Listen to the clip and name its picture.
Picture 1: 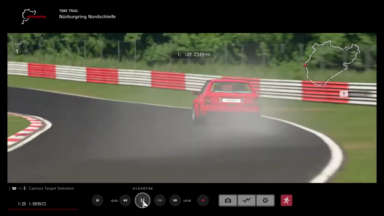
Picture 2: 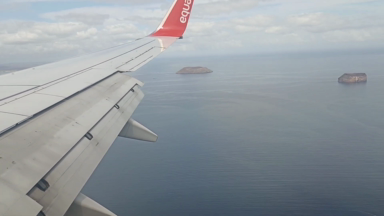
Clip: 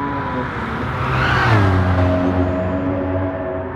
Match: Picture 1